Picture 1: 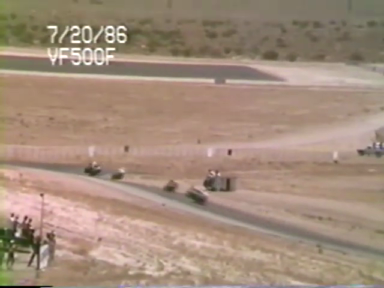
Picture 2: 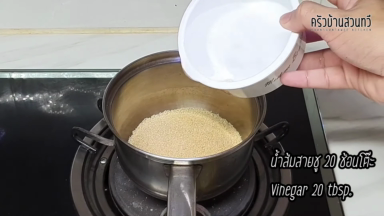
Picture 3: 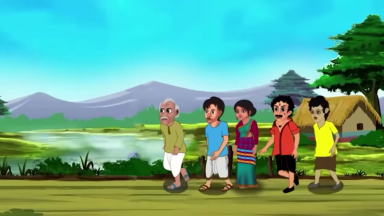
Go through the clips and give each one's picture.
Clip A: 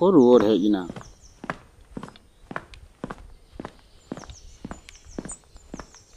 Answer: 3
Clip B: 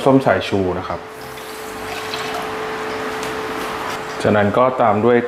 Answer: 2